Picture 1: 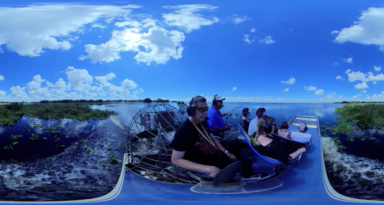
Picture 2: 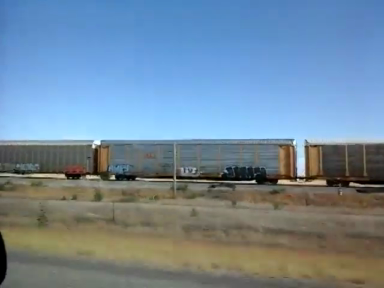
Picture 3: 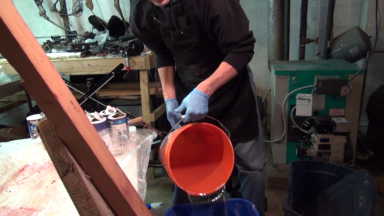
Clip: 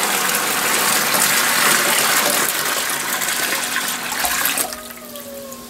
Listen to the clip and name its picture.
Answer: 3